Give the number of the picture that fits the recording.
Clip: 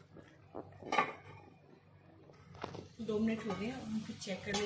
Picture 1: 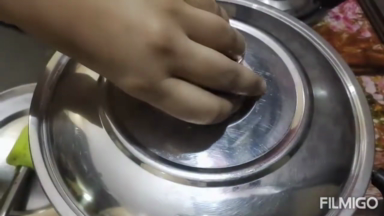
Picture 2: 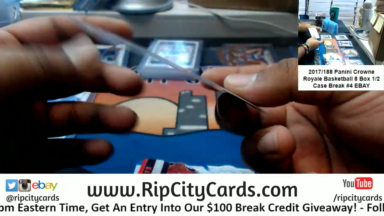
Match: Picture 1